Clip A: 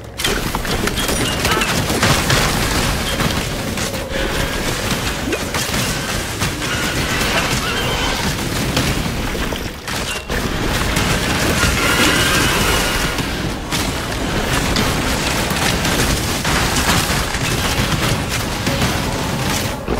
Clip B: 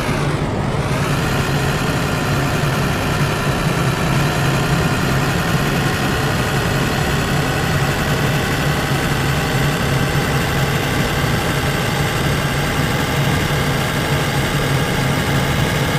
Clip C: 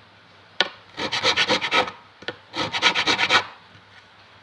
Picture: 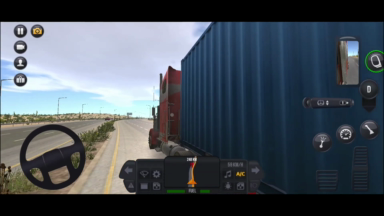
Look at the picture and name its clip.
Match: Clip B